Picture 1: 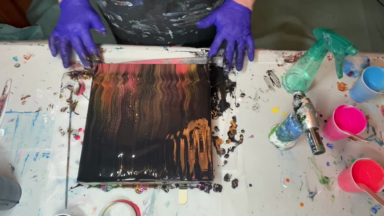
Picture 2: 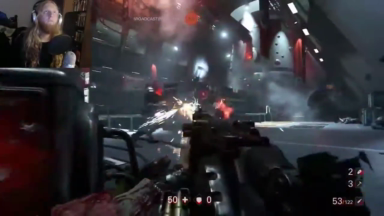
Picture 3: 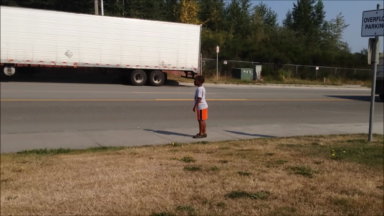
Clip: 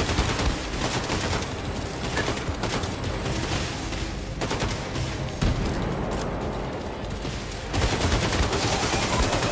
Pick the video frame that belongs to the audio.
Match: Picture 2